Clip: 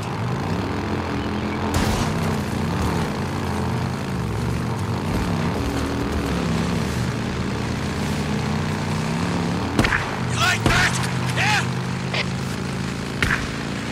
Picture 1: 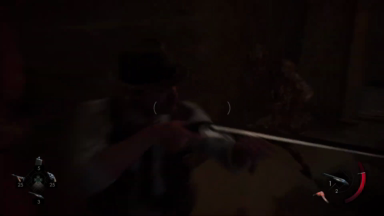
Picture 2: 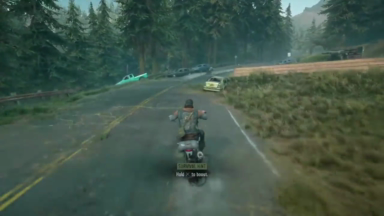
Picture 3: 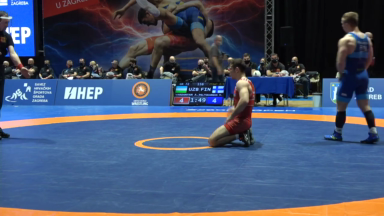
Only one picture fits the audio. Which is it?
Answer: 2